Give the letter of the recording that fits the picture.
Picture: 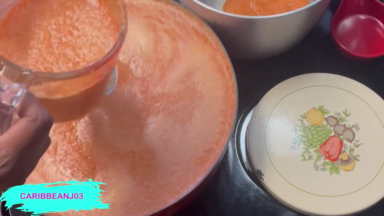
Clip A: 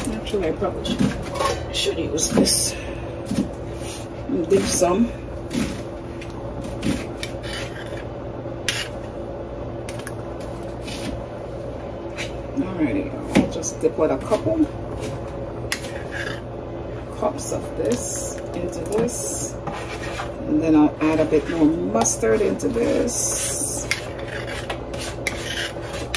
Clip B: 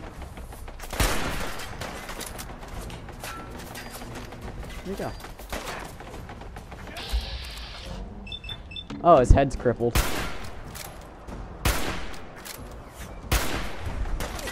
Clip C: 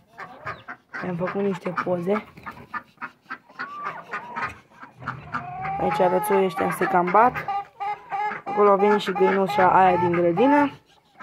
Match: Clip A